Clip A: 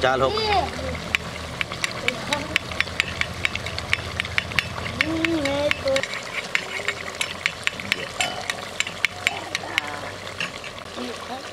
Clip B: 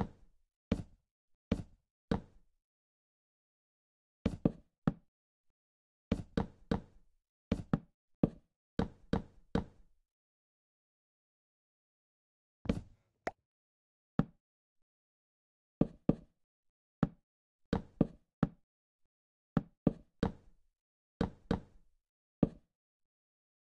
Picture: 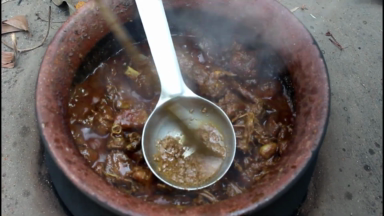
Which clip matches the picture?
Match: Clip A